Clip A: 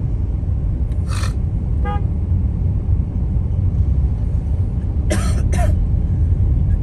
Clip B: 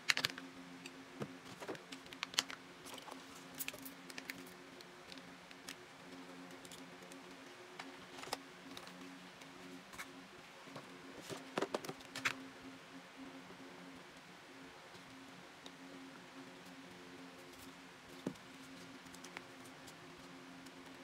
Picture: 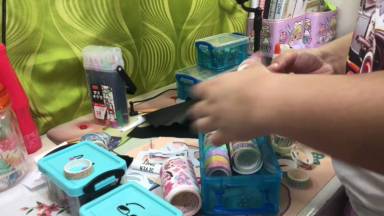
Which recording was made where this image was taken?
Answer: B